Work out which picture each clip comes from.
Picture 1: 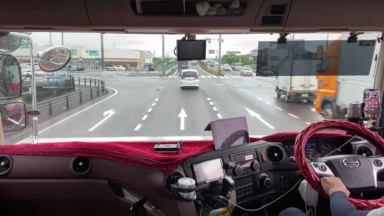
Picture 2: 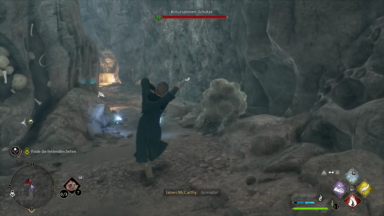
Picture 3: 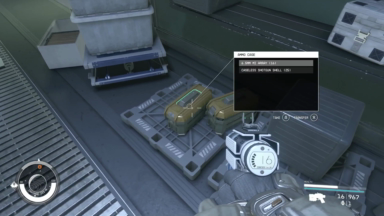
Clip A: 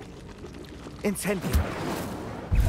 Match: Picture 2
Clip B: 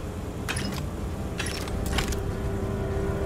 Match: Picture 3